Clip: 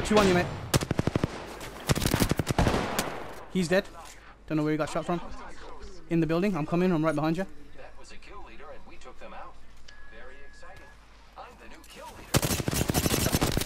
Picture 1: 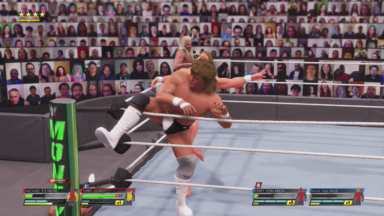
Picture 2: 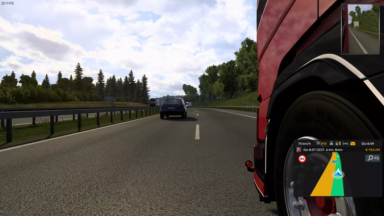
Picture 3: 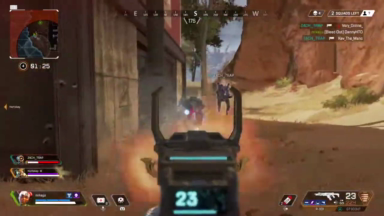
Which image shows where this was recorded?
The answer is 3